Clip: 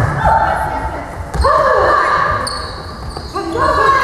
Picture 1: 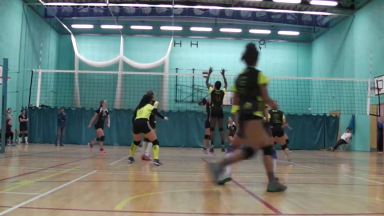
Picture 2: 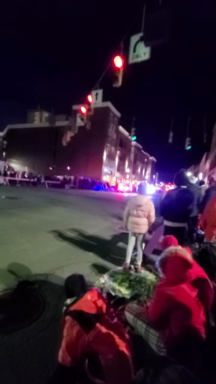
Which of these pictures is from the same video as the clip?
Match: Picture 1